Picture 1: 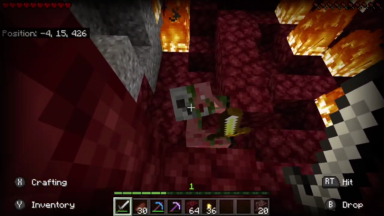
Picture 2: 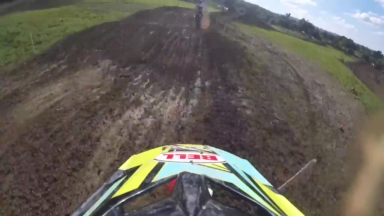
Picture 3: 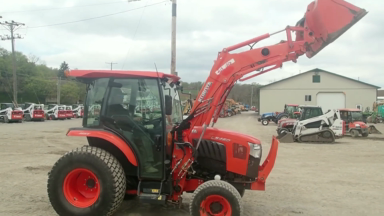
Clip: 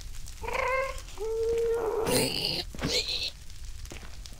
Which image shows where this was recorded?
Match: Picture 1